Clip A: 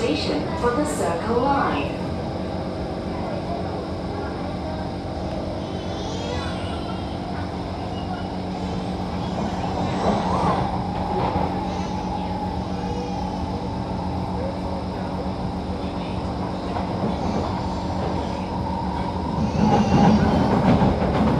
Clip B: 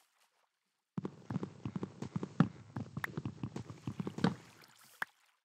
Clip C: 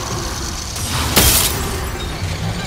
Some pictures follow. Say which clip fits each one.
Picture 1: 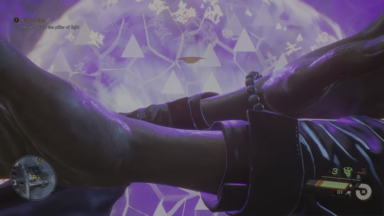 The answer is C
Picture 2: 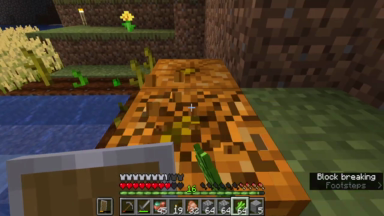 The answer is B